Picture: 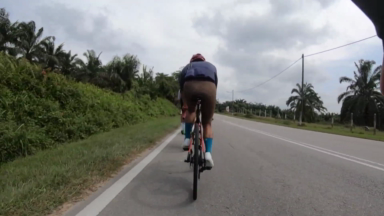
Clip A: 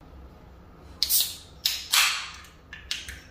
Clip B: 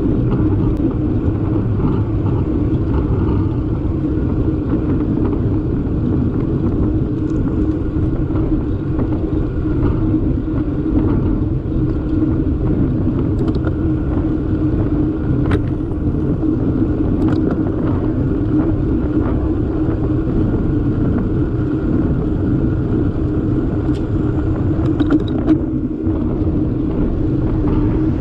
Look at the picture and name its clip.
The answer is B